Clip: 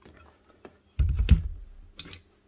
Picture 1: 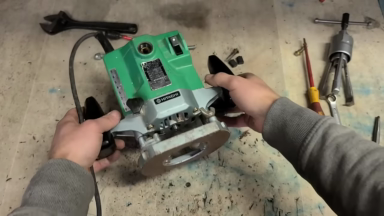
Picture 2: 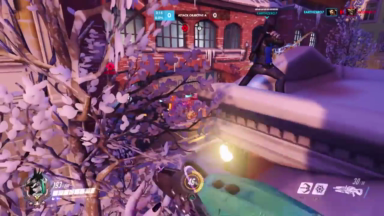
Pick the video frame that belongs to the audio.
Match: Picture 1